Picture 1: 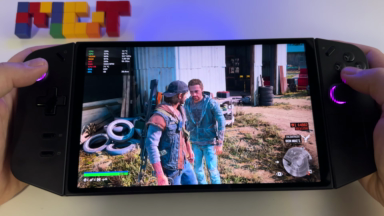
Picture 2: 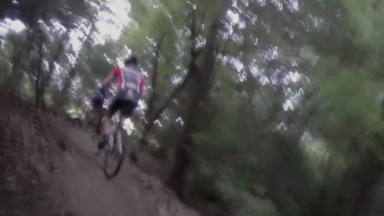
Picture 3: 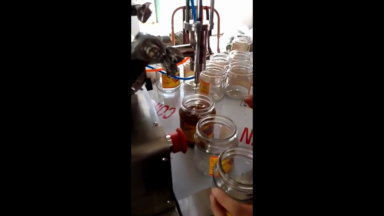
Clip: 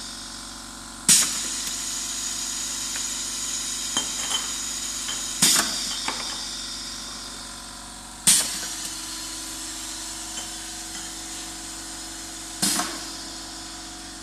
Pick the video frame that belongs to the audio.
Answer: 3